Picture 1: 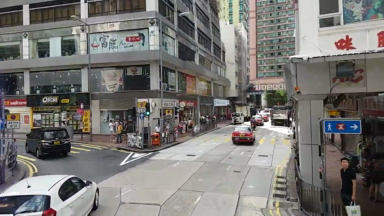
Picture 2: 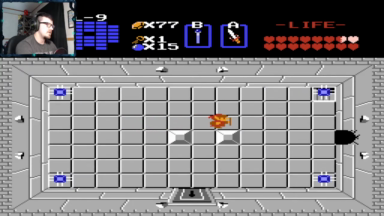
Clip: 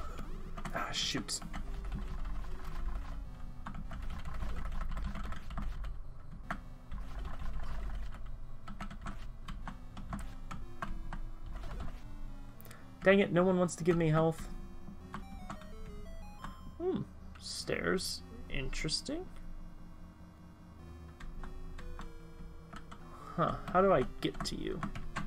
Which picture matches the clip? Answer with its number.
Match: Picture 2